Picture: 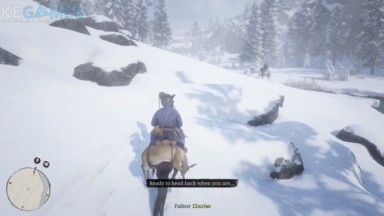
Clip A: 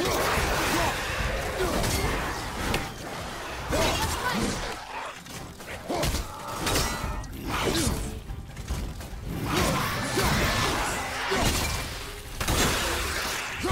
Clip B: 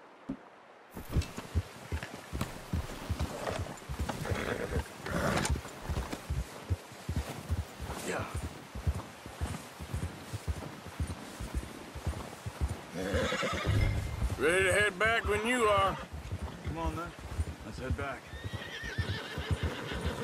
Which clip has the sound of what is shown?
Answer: B